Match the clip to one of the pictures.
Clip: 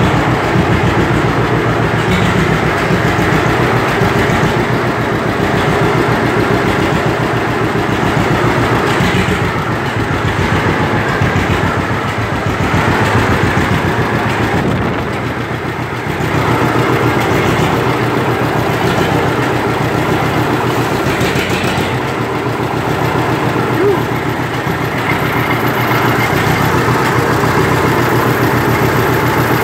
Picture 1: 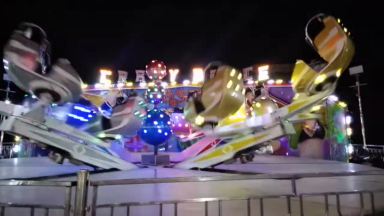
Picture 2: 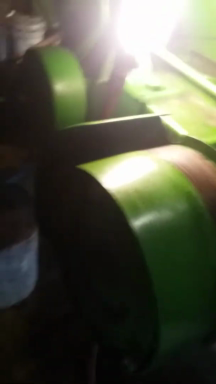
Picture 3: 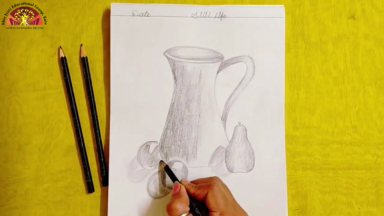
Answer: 2